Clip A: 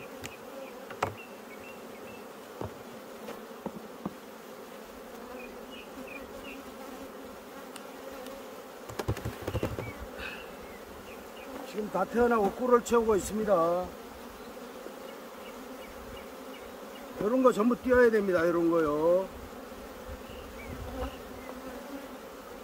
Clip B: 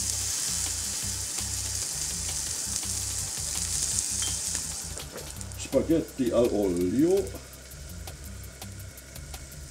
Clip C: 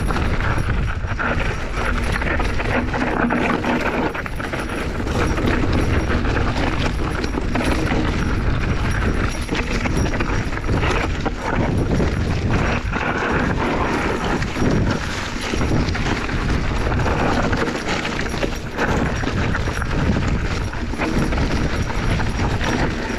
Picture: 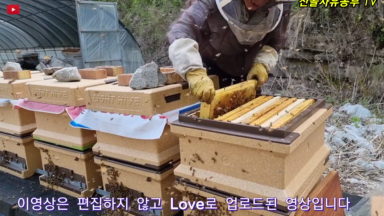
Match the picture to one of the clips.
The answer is A